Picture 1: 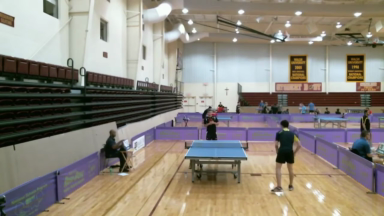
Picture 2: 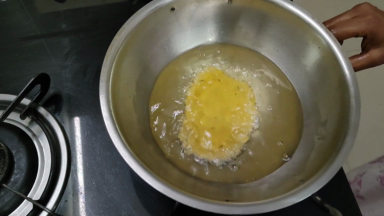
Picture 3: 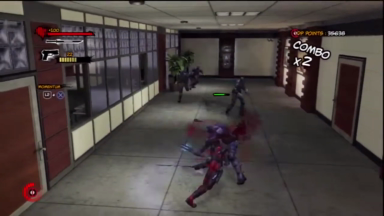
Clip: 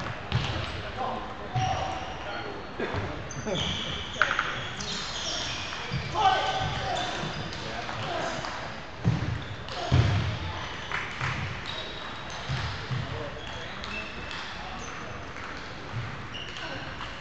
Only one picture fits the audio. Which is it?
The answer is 1